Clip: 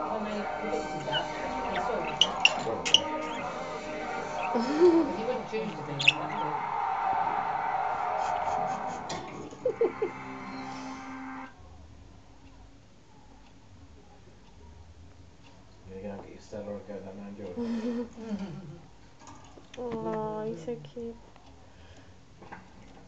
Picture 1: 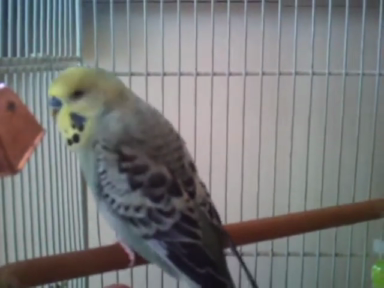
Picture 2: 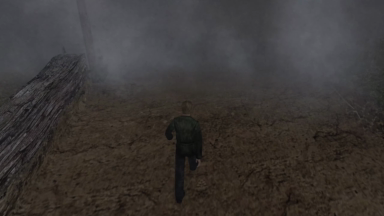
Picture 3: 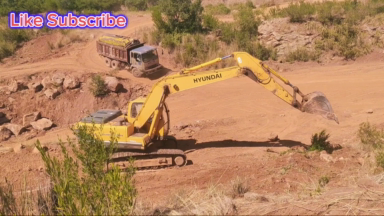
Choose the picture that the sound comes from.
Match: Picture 1